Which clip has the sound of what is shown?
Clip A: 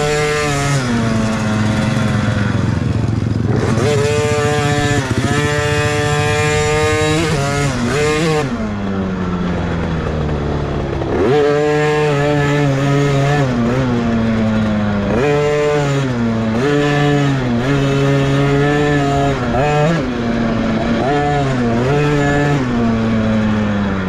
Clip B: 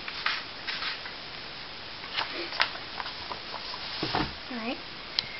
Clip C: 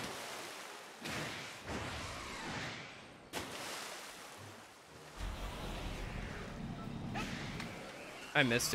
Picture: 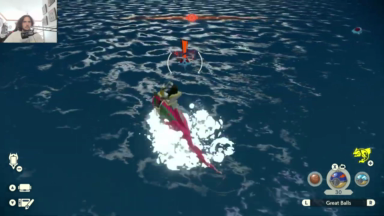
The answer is C